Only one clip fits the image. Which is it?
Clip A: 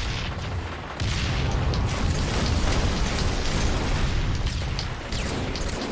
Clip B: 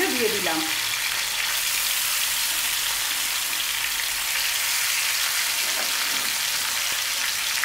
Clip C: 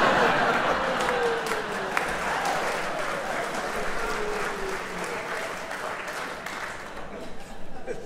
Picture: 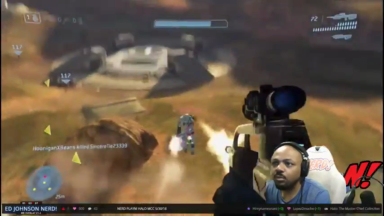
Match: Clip A